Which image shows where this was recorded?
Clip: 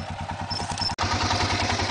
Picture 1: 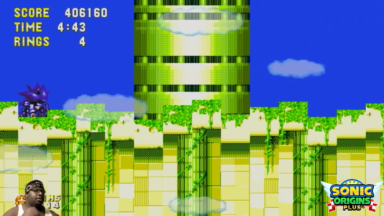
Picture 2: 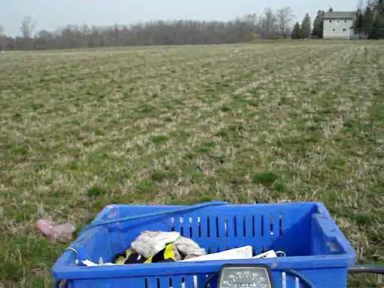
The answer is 2